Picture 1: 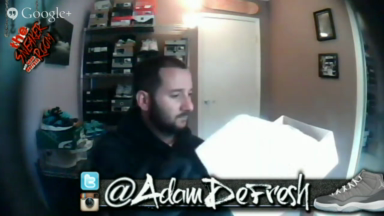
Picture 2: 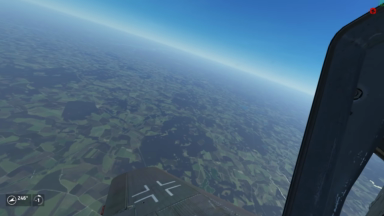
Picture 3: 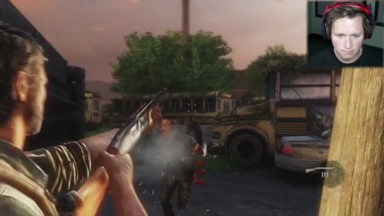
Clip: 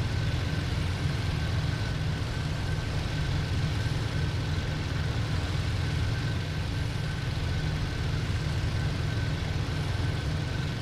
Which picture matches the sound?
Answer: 2